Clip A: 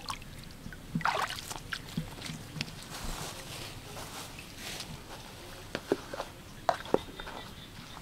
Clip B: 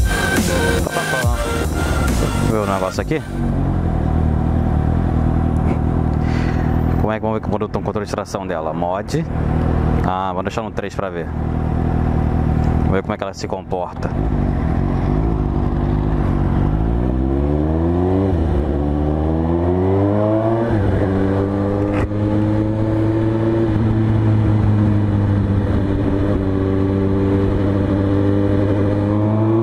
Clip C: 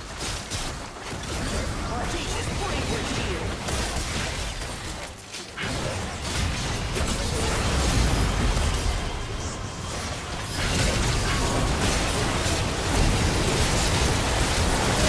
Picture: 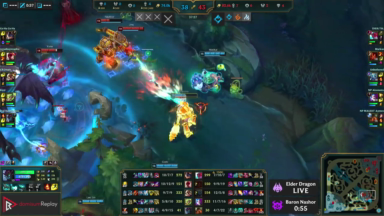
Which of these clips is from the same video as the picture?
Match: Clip C